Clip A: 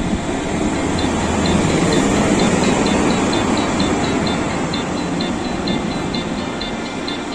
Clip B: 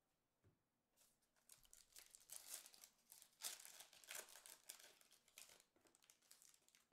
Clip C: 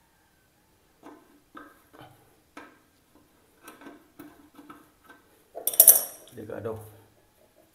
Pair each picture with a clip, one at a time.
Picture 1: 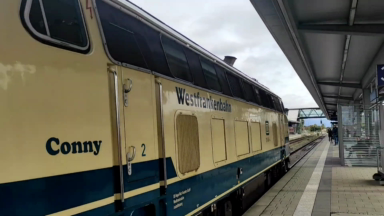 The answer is A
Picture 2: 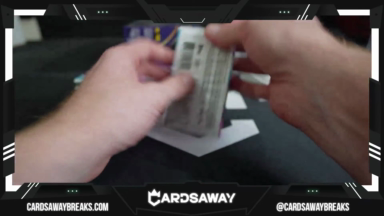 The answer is B